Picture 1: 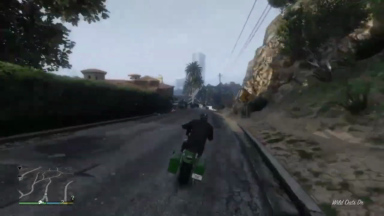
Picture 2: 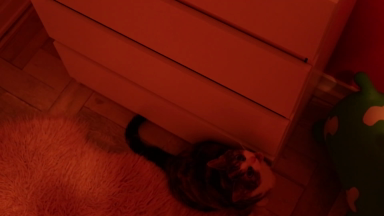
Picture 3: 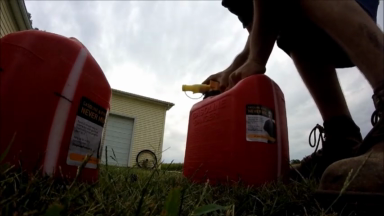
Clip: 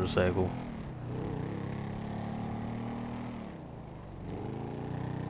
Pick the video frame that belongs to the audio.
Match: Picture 1